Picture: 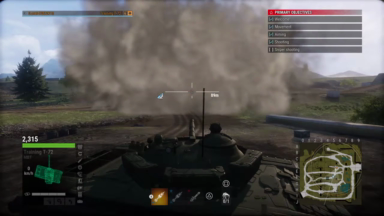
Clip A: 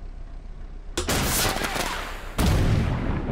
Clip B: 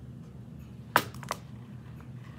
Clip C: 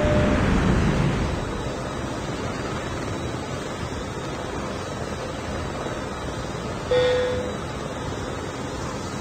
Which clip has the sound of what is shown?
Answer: A